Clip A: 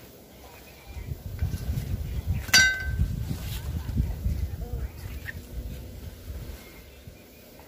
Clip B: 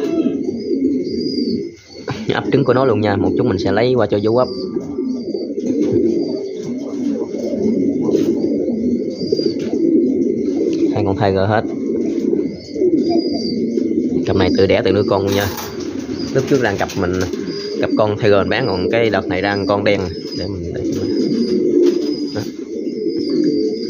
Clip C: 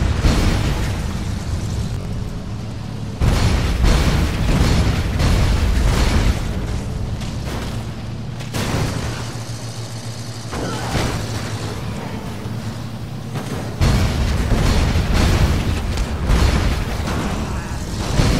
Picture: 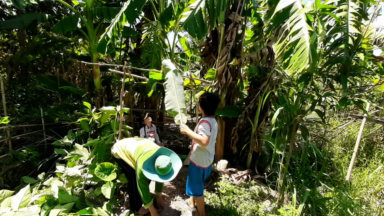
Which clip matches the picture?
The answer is A